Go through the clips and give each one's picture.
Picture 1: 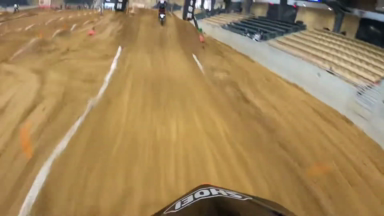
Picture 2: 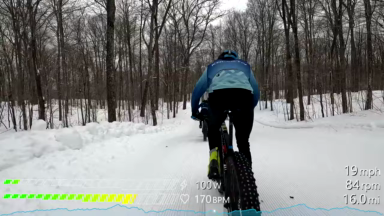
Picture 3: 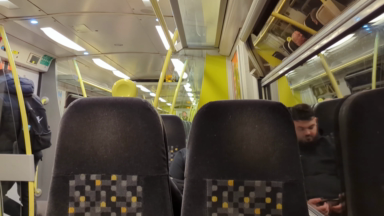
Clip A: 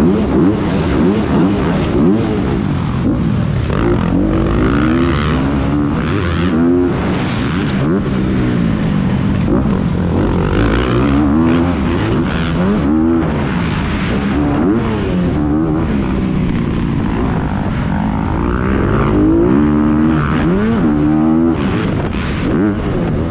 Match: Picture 1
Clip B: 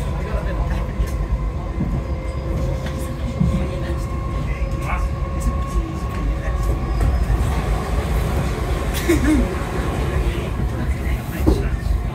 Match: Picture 3